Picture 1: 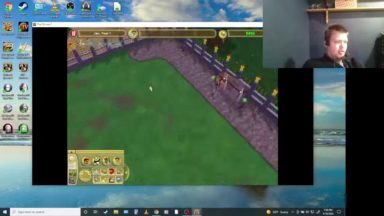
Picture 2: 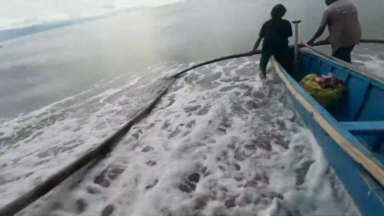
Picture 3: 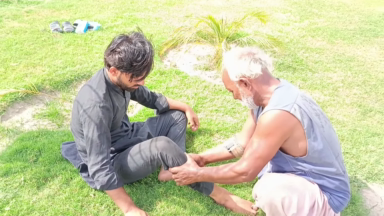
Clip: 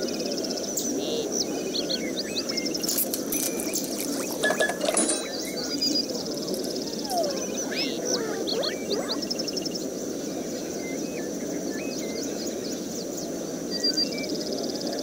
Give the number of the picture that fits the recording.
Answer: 1